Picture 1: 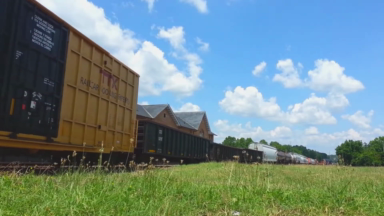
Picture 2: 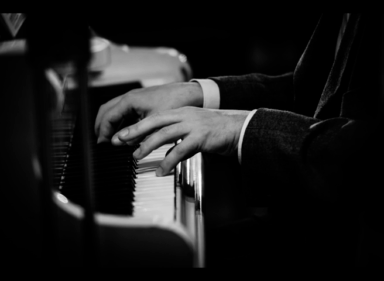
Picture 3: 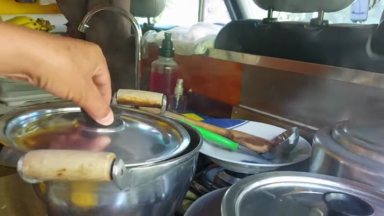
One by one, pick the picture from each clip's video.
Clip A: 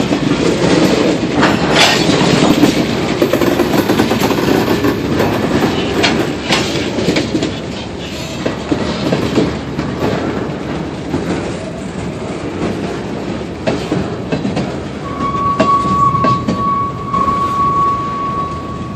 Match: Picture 1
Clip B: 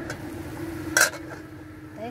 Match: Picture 3